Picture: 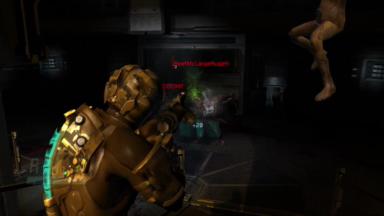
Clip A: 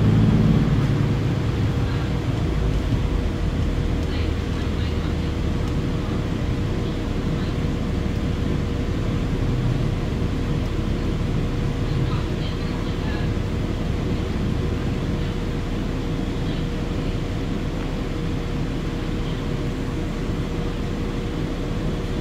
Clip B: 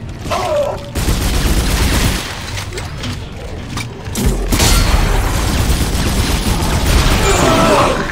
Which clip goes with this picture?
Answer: B